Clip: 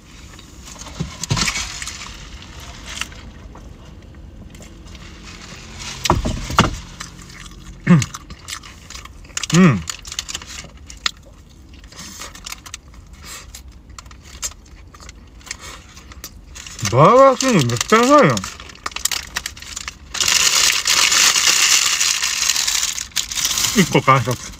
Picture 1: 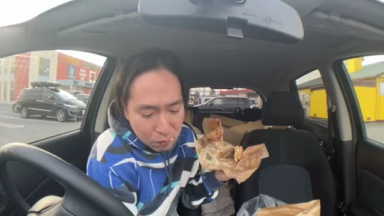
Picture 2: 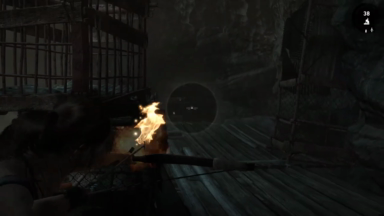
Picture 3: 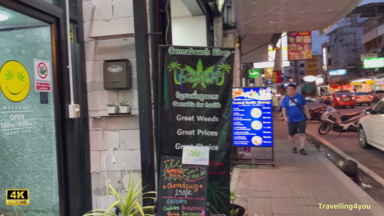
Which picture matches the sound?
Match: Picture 1